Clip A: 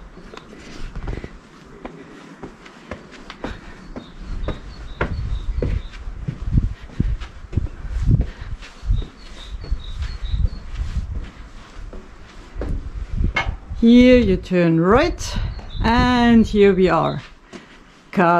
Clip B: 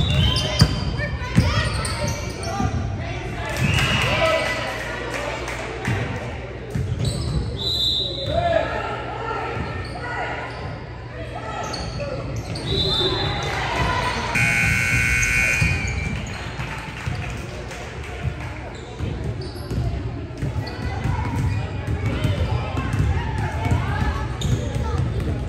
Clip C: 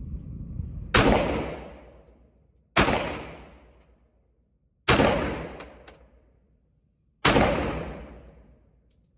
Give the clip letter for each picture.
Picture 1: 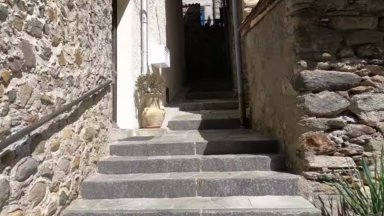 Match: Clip A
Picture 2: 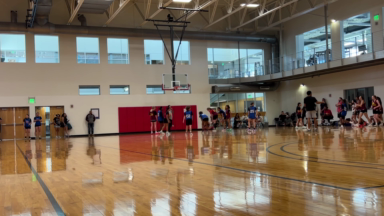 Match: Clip B